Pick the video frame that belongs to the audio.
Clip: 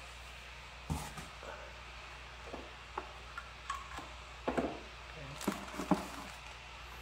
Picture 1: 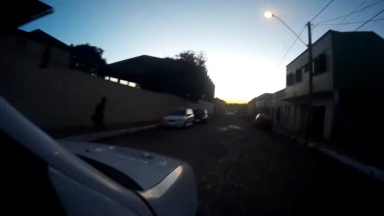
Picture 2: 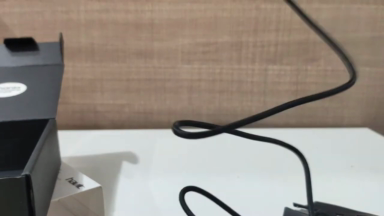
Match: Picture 2